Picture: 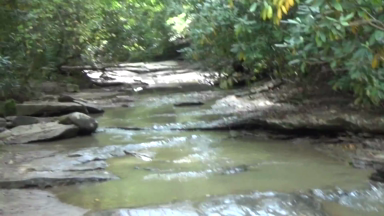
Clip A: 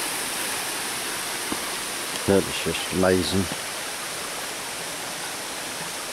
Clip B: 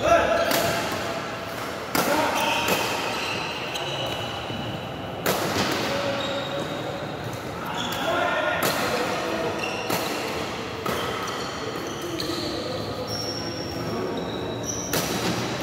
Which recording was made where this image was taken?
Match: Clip A